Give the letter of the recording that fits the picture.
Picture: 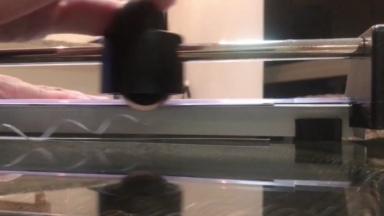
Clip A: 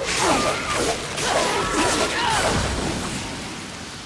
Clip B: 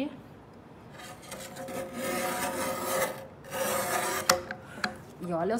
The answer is B